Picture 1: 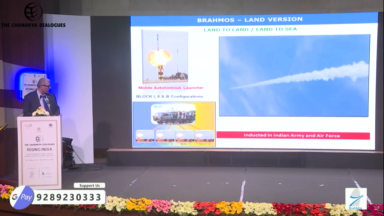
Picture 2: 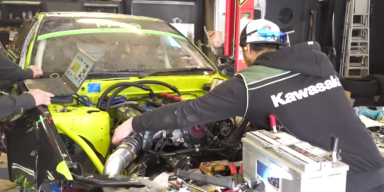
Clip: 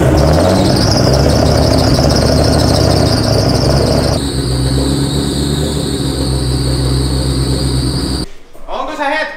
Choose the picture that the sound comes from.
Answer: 2